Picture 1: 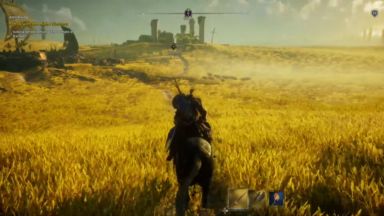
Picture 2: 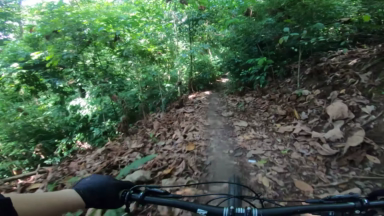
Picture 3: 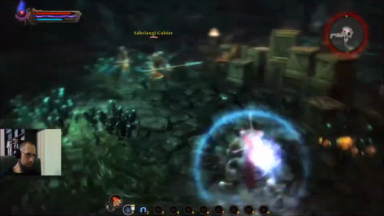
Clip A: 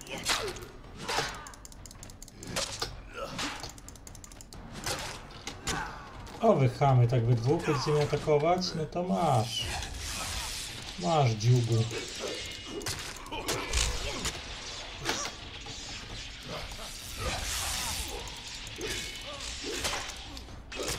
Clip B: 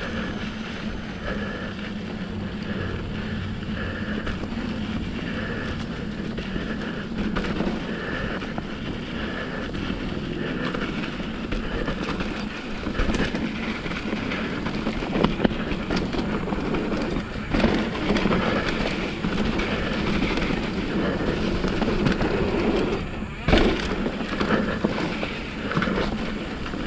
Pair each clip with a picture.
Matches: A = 3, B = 2